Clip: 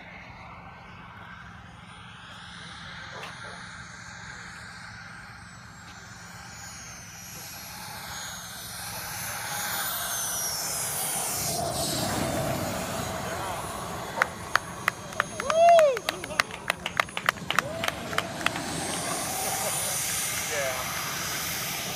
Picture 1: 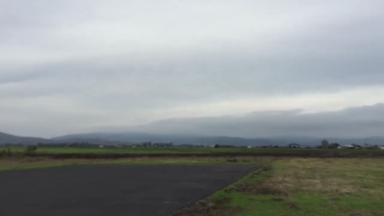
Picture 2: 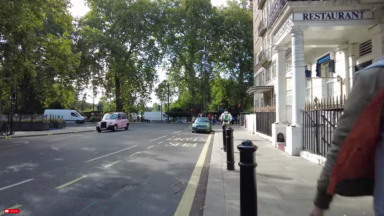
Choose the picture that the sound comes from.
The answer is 1